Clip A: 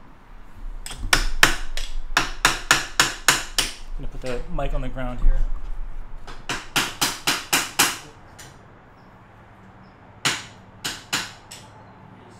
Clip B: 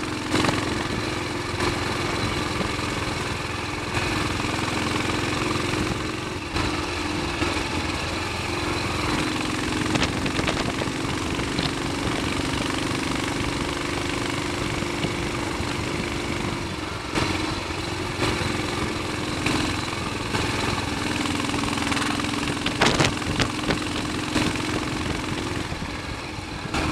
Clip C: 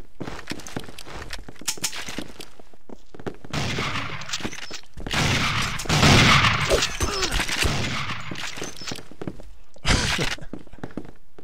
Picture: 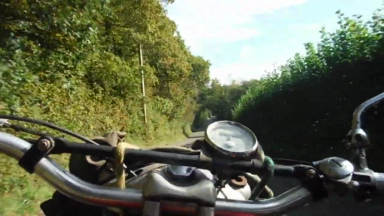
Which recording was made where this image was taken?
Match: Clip B